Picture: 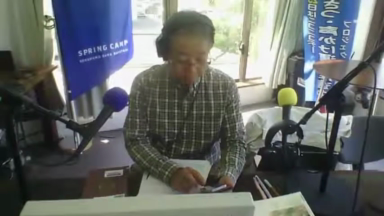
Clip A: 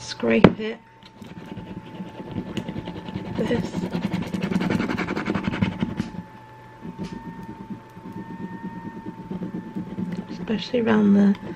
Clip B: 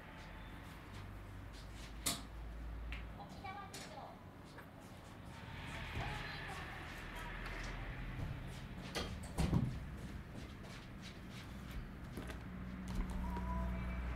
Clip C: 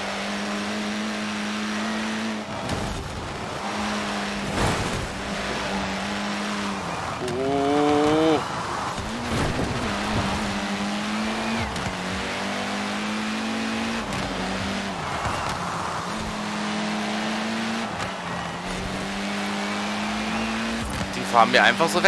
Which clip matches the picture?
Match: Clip B